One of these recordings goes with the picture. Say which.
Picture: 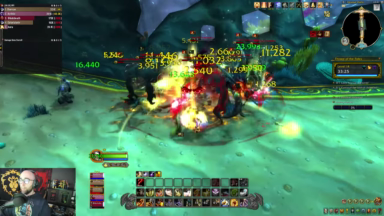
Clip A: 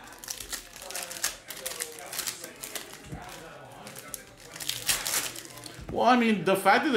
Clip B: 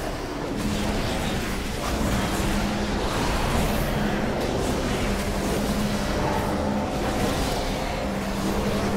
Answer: B